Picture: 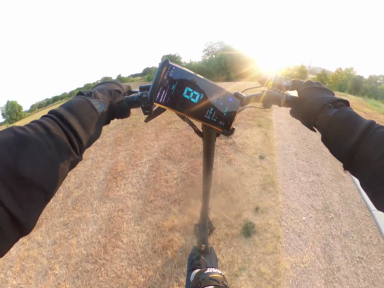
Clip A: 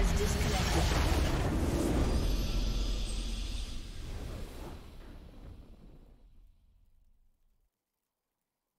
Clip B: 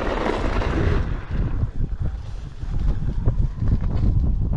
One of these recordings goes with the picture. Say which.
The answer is B